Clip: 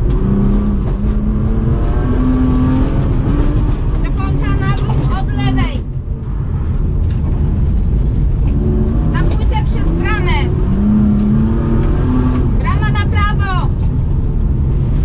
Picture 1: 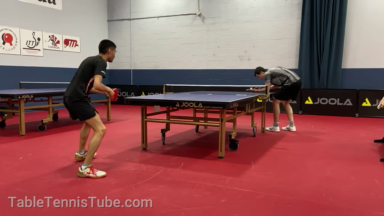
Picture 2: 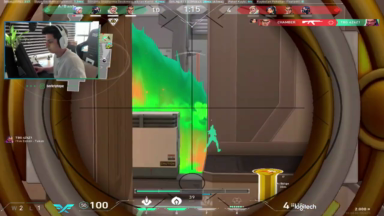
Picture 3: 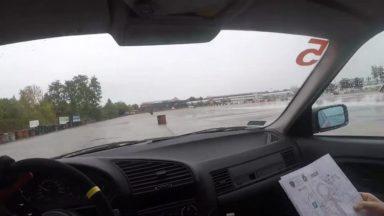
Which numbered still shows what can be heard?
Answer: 3